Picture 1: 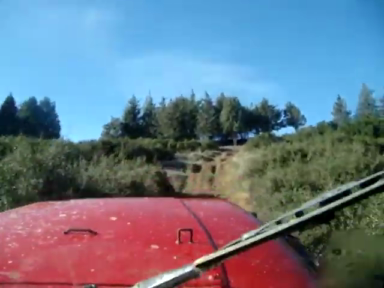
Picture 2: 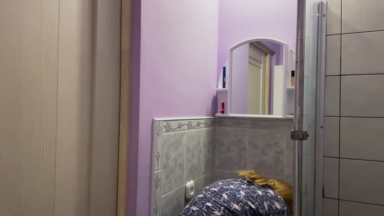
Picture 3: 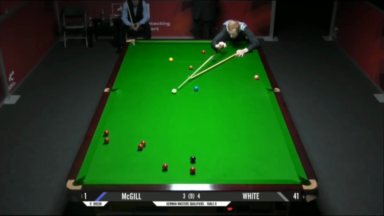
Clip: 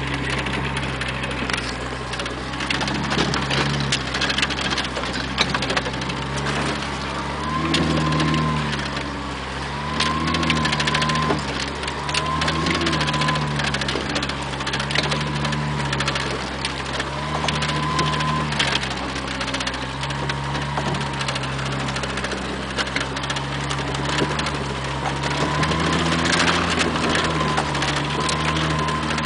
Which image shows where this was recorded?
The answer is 1